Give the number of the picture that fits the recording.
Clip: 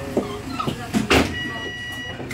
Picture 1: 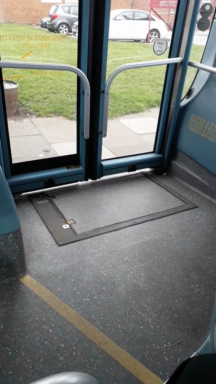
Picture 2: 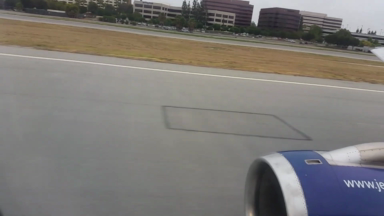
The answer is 1